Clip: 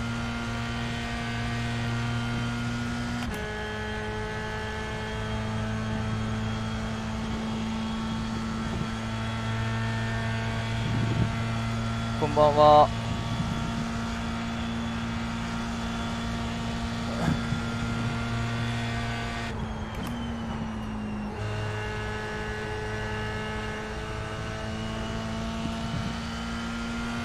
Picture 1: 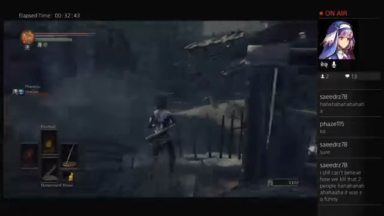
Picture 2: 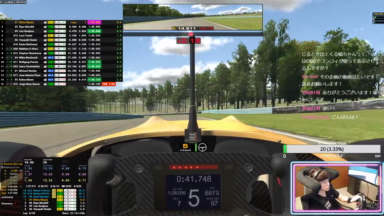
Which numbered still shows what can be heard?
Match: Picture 2